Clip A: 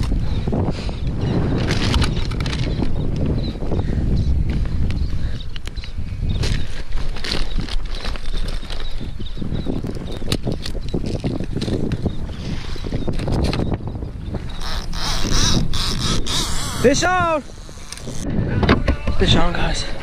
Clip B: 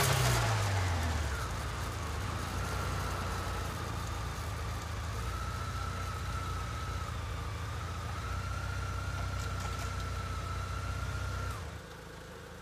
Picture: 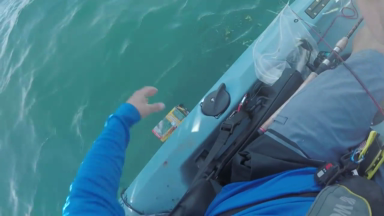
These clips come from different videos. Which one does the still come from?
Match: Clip A